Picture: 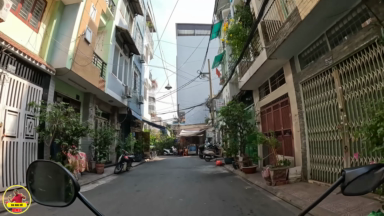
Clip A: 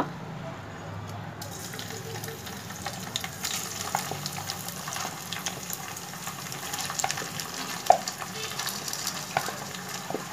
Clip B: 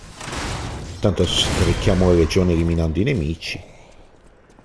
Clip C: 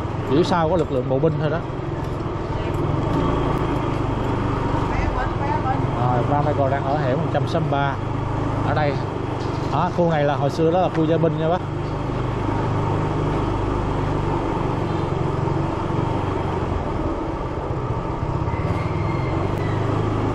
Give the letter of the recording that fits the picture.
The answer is C